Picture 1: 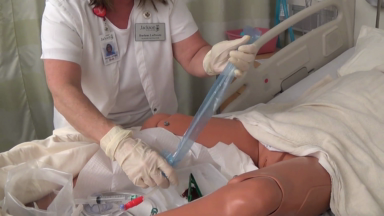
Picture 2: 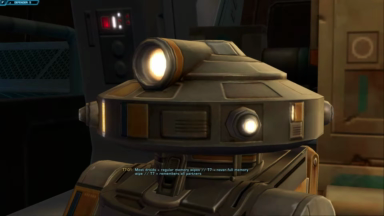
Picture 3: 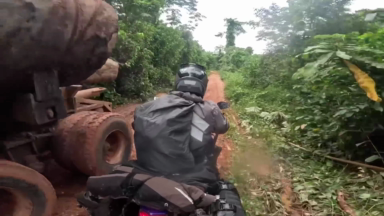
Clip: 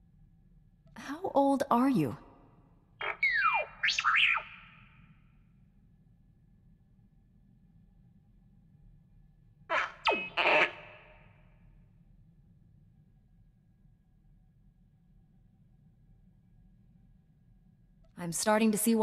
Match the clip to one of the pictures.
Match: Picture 2